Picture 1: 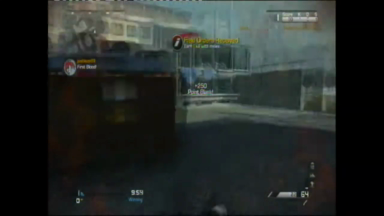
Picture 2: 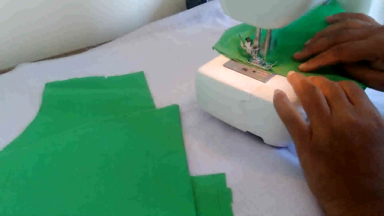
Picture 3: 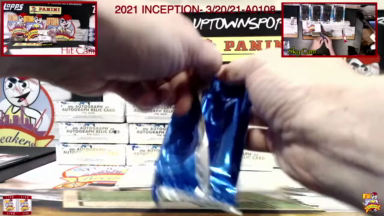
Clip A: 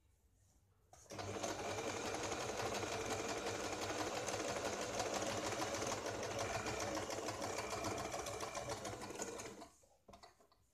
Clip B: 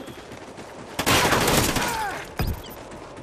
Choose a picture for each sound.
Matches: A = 2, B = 1